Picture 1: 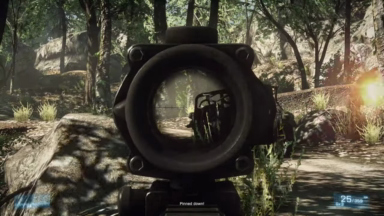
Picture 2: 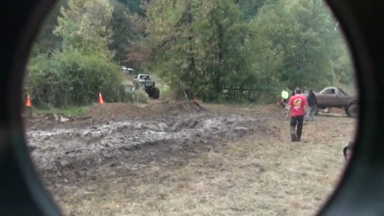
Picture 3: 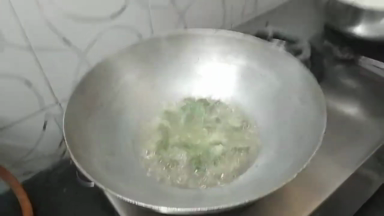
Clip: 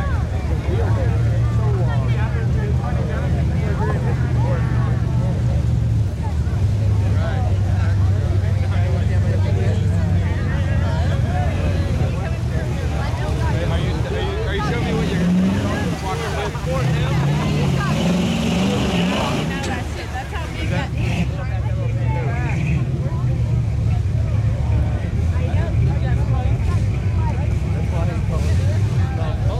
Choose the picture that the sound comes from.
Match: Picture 2